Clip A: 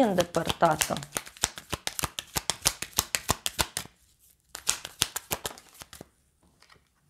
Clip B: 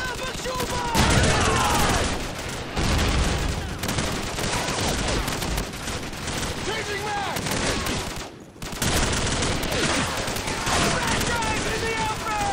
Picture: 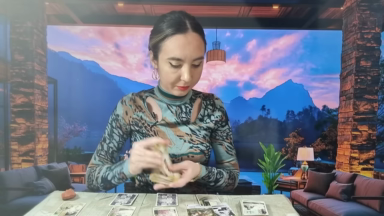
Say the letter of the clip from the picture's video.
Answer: A